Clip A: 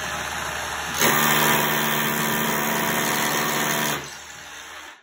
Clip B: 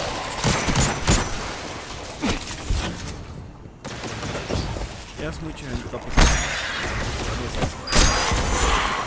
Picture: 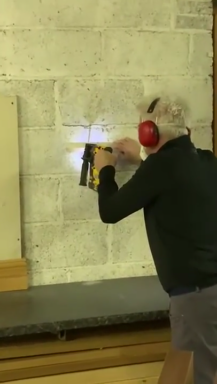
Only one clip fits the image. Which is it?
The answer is A